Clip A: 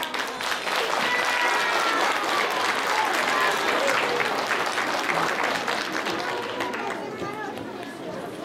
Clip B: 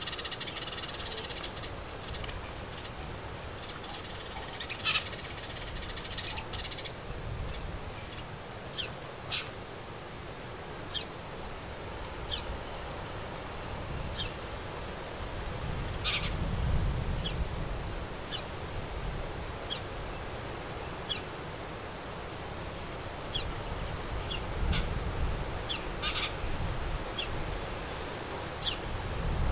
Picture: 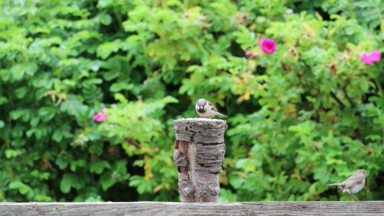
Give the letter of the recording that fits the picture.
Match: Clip B